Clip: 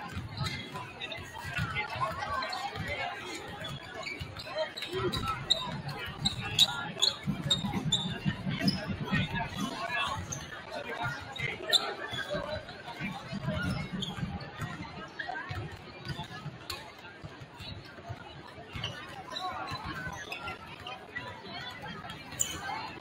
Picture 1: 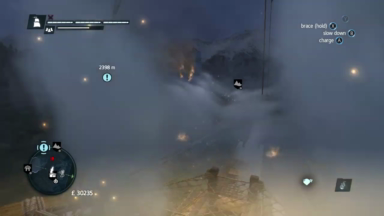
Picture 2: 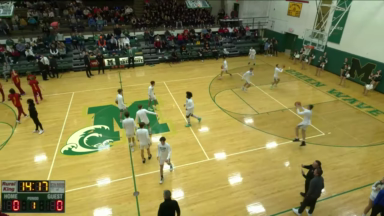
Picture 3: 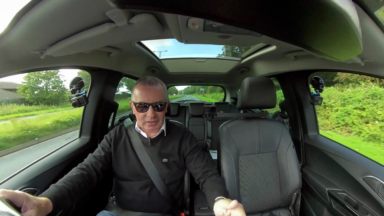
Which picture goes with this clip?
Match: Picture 2